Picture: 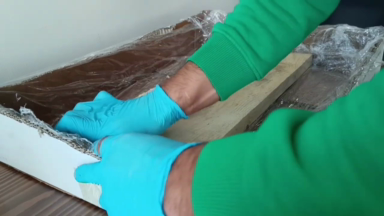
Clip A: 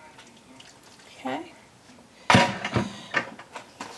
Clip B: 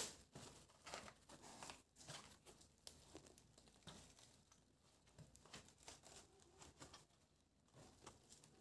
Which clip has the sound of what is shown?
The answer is B